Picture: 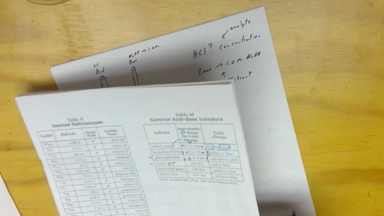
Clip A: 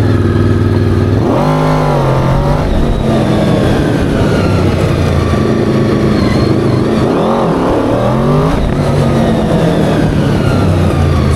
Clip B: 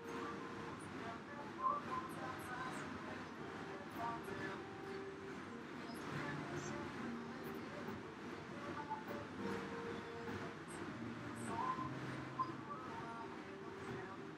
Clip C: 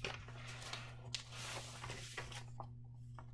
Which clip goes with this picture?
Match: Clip C